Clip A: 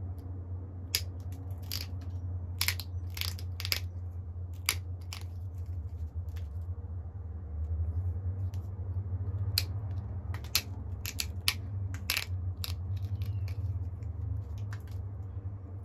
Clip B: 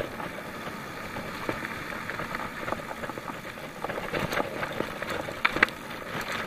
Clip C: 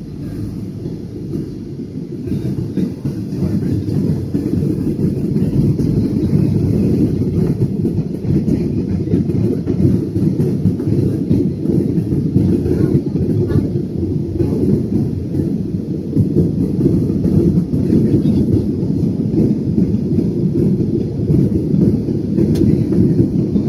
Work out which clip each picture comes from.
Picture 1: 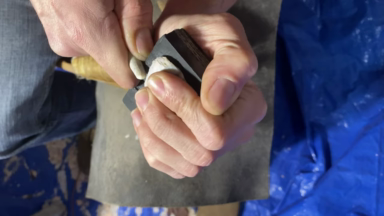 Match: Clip A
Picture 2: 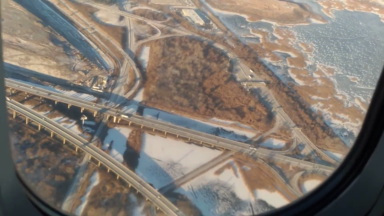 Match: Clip C